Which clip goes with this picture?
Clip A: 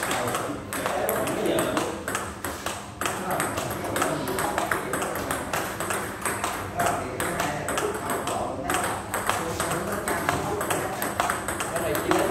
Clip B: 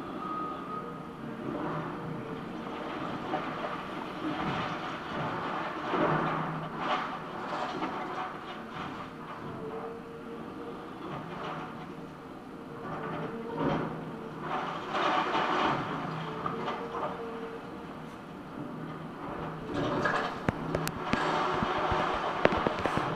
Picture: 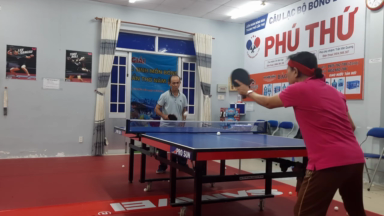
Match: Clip A